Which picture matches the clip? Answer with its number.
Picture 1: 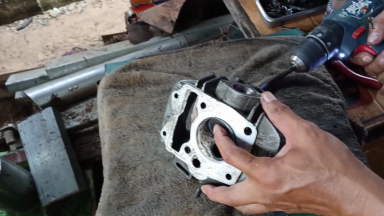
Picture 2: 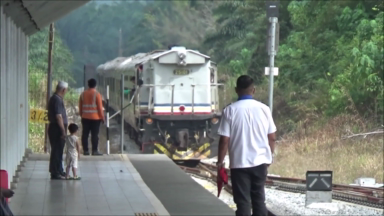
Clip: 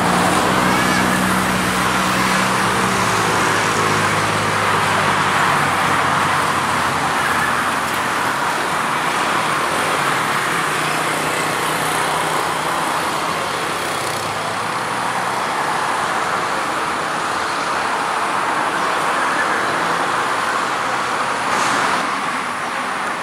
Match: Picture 2